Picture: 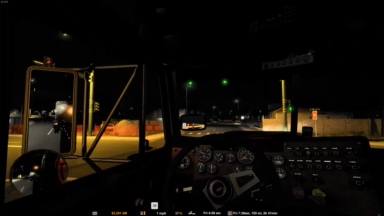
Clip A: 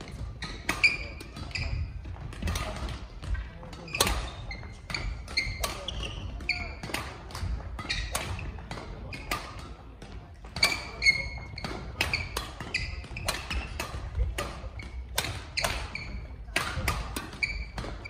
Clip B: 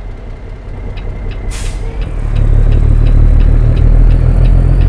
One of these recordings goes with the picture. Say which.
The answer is B